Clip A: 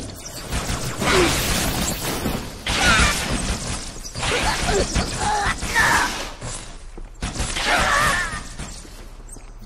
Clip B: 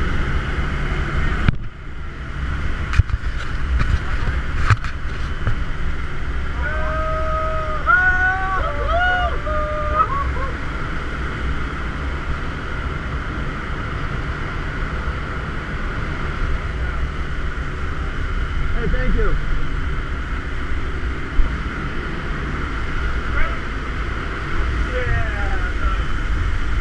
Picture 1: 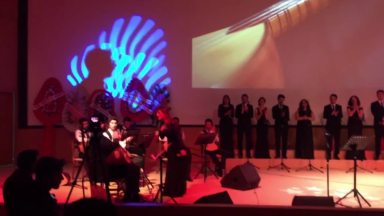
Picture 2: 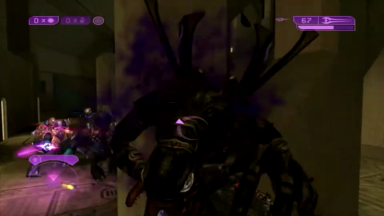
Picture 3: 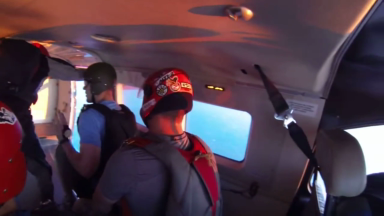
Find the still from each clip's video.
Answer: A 2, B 3